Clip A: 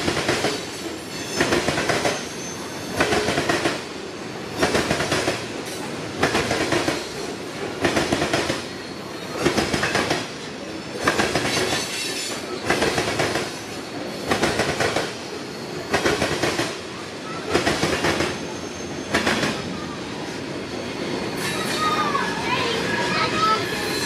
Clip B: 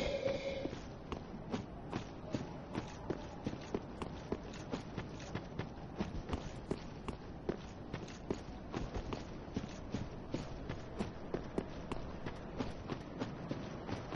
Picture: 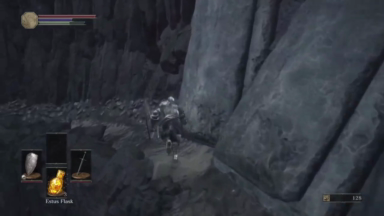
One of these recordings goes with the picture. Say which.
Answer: B